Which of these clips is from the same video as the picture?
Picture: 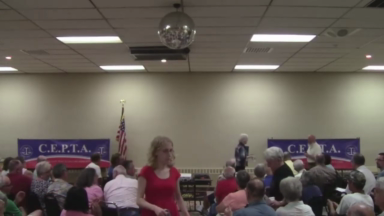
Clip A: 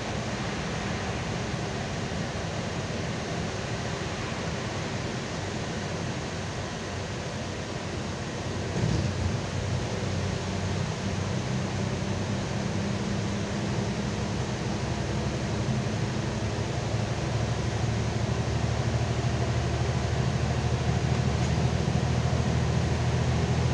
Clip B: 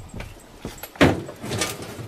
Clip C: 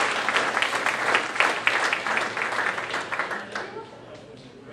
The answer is C